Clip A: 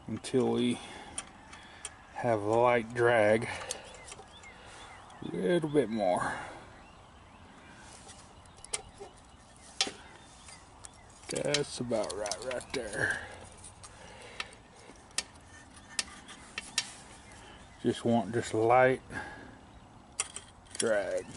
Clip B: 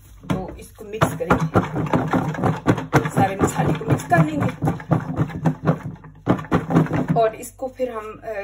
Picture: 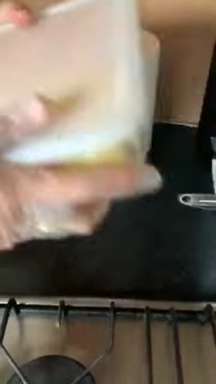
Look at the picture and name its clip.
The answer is B